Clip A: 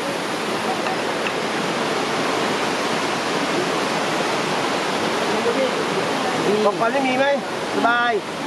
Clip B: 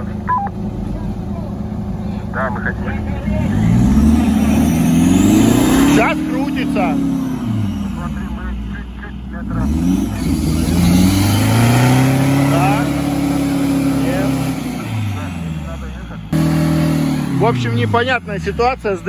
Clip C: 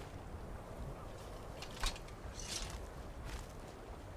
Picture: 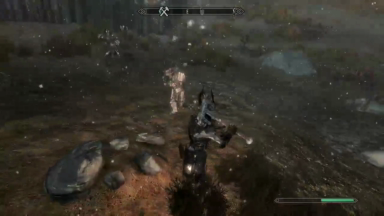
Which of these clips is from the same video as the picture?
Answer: C